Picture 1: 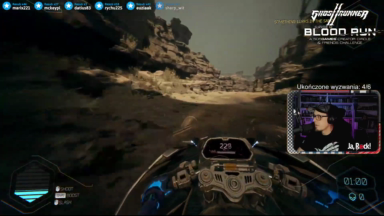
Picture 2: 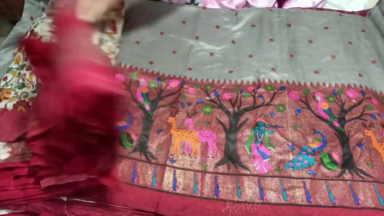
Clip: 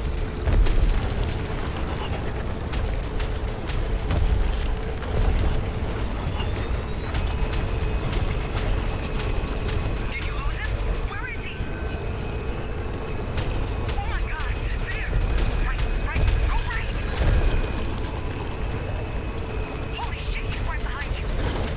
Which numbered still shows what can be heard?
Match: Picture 1